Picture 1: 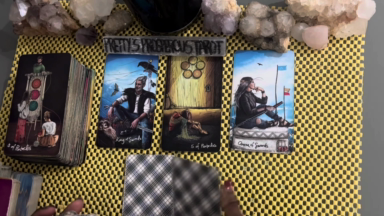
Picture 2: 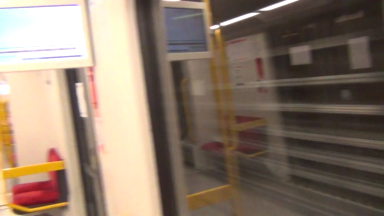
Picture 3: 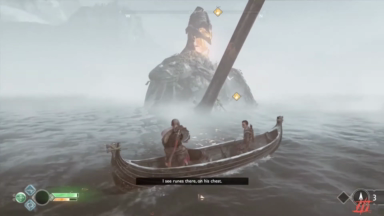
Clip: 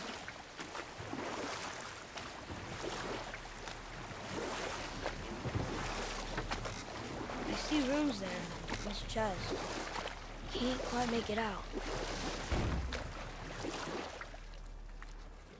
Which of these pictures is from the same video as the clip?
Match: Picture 3